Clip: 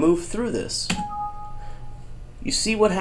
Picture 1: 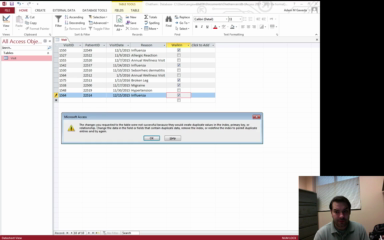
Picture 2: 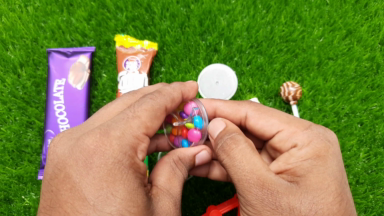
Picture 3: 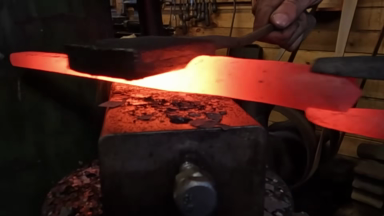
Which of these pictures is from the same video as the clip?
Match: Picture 1